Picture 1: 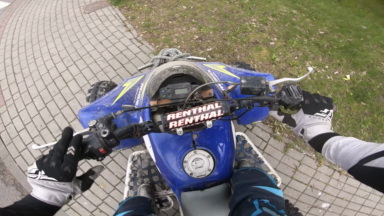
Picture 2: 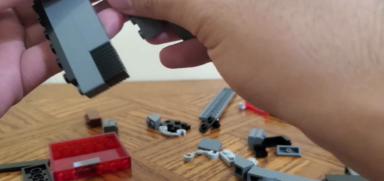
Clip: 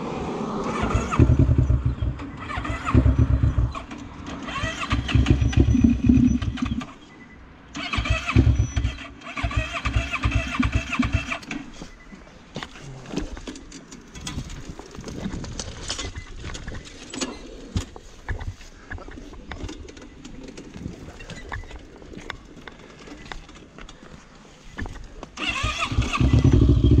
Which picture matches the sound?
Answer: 1